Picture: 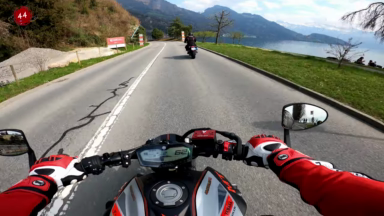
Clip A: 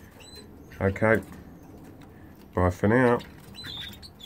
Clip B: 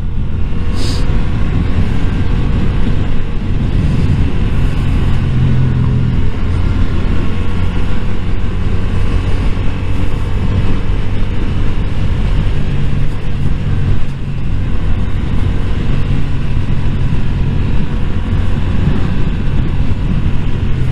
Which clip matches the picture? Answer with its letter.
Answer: B